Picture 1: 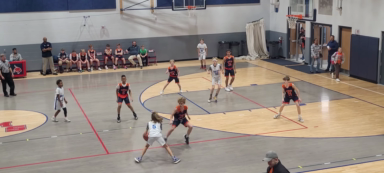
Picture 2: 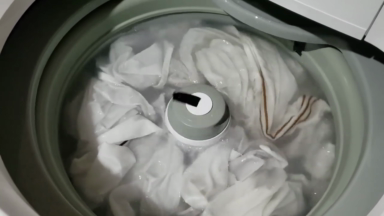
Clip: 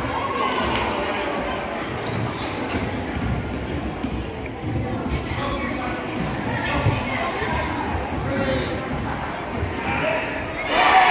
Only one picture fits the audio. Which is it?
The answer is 1